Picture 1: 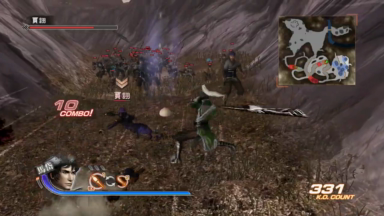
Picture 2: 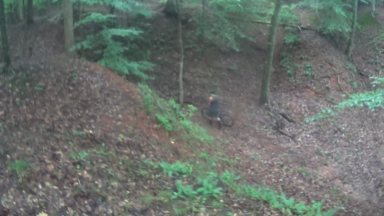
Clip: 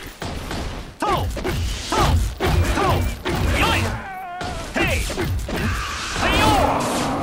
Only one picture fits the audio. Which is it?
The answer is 1